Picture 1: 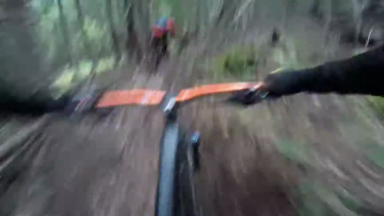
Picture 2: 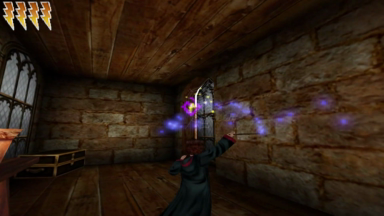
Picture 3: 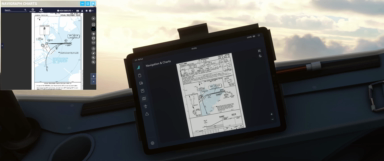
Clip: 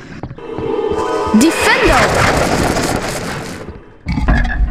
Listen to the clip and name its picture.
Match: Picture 2